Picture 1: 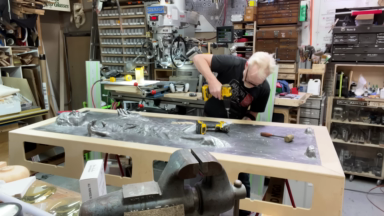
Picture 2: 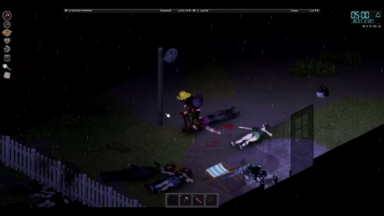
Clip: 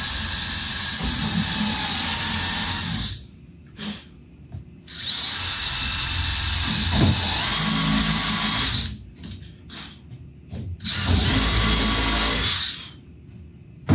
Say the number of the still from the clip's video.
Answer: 1